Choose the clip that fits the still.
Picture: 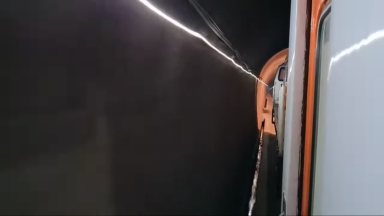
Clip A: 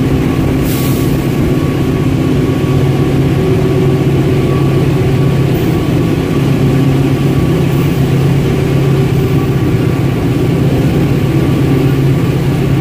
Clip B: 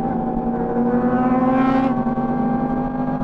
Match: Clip A